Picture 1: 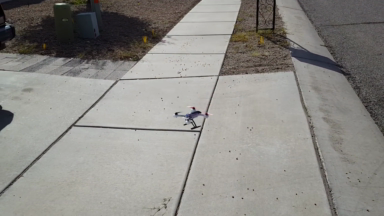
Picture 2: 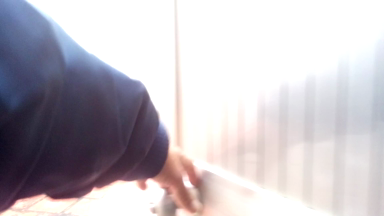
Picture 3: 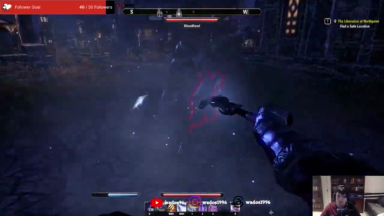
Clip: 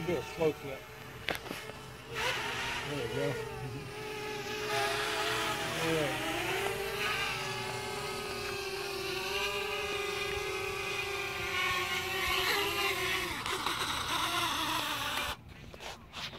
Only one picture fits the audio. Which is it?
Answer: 1